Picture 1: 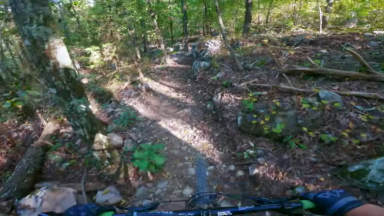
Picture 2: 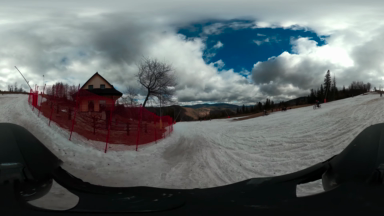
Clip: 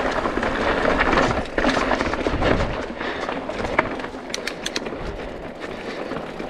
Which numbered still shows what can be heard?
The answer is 1